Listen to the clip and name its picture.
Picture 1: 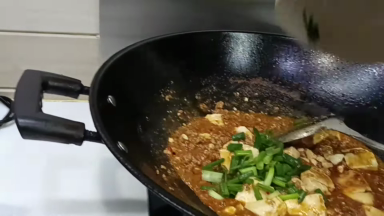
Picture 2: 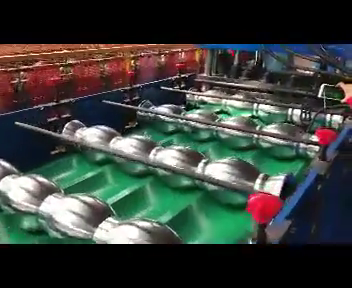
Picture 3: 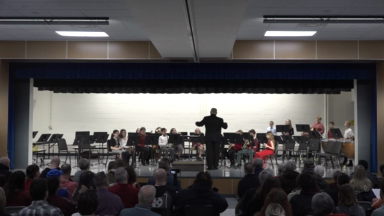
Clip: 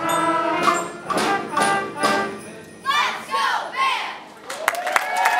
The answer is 3